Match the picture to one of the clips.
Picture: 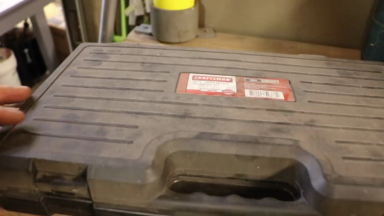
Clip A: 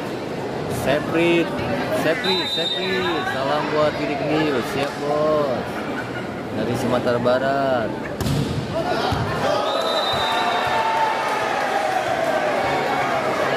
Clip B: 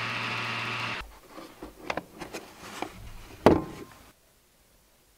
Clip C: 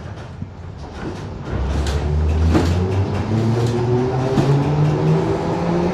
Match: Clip B